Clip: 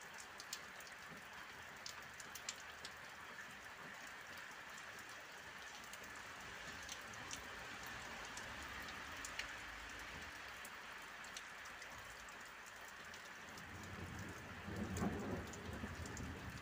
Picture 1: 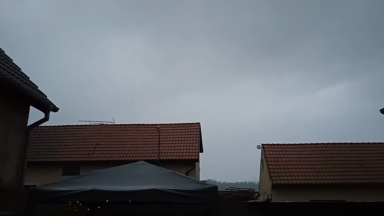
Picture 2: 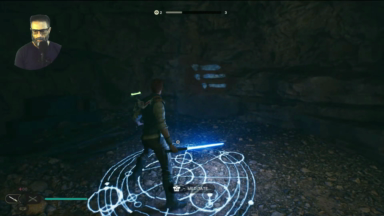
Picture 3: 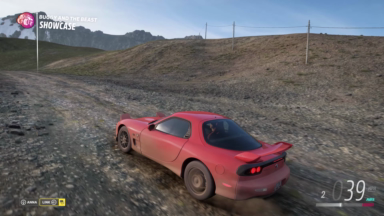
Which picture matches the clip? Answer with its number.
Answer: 1